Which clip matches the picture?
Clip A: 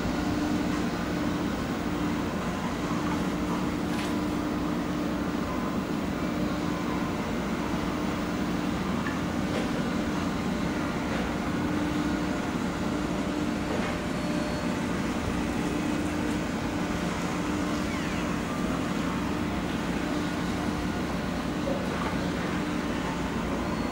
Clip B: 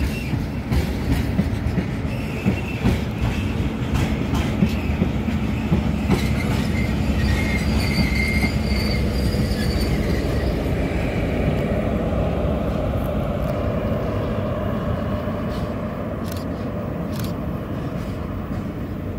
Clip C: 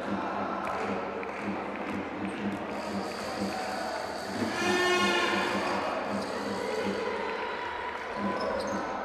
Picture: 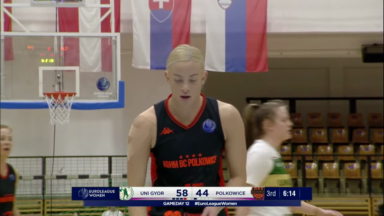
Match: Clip C